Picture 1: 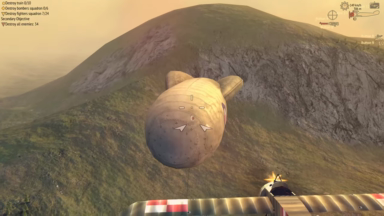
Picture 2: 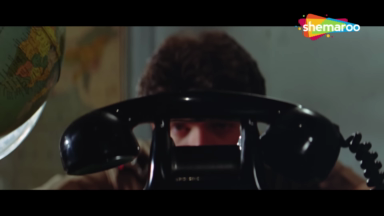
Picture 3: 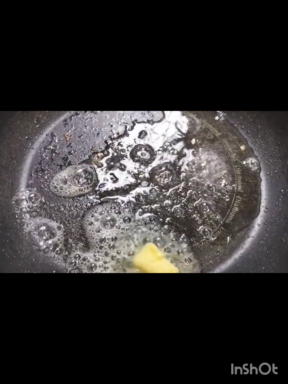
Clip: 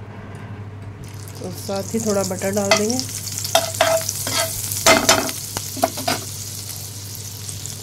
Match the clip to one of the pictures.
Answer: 3